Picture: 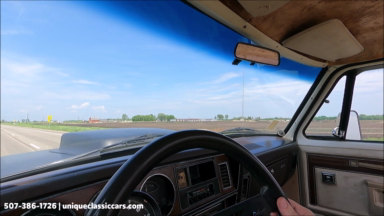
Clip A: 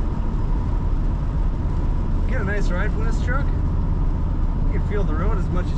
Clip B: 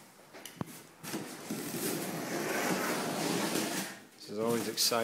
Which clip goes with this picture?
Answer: A